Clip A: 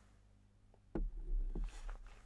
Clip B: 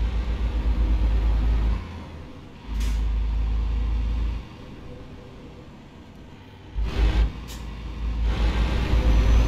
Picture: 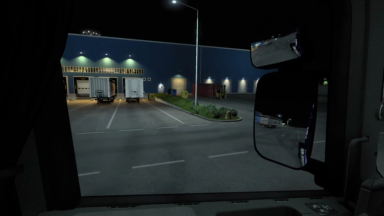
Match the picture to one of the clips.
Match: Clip B